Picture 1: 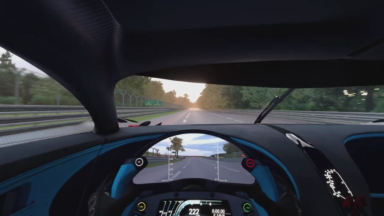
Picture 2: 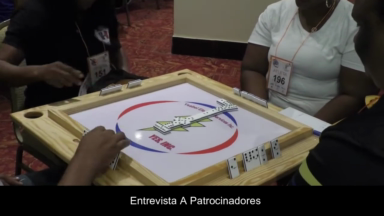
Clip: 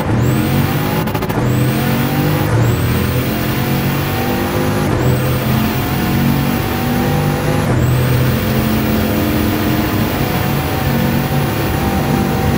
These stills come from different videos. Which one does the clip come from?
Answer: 1